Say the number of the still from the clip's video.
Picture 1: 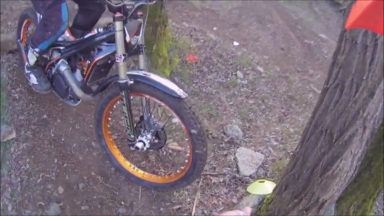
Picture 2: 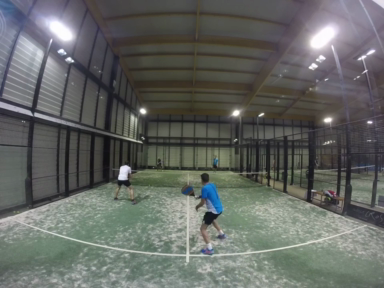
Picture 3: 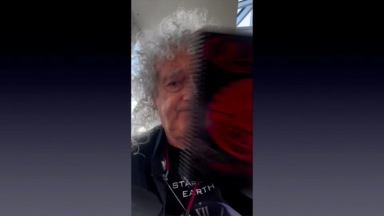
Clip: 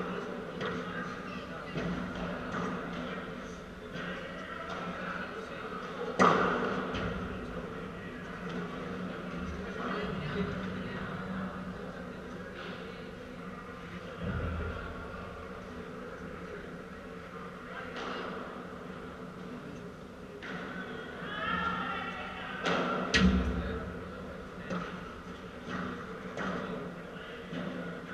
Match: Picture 2